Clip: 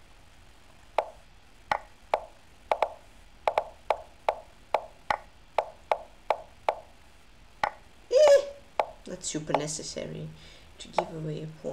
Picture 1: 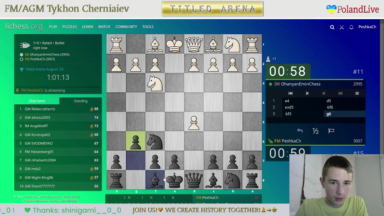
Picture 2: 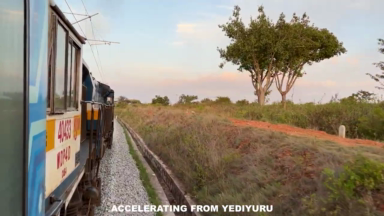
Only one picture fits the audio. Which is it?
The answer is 1